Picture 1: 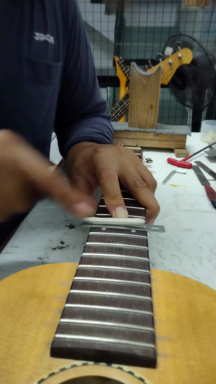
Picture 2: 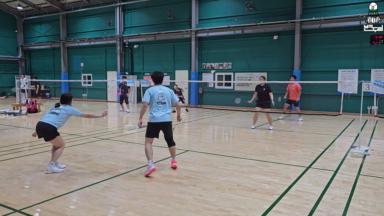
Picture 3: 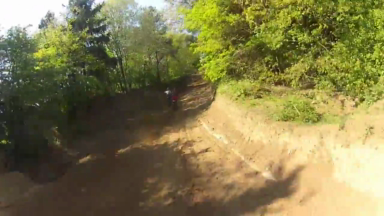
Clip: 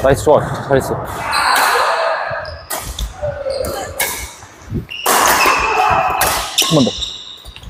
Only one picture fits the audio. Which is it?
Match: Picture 2